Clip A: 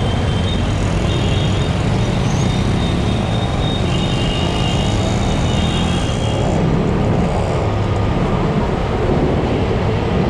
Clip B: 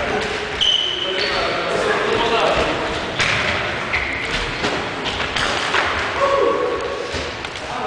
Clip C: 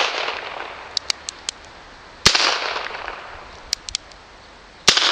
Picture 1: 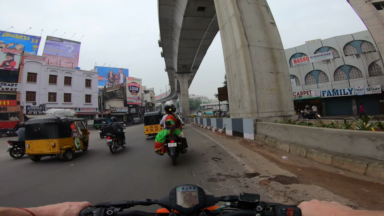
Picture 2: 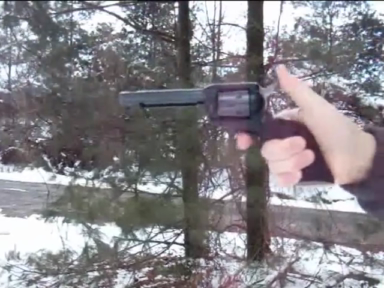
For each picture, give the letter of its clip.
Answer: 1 A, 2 C